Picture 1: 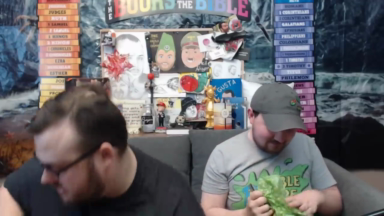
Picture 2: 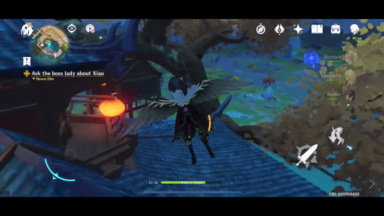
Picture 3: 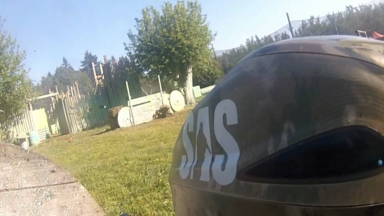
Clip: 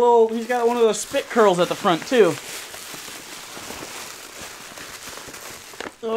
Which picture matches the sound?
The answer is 1